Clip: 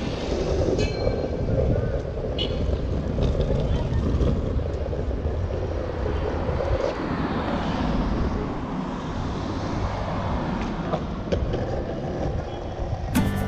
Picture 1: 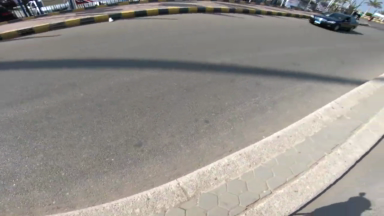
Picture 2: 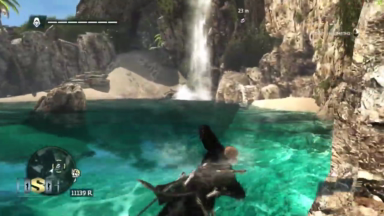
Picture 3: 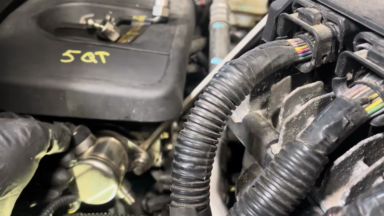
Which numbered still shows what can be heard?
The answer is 1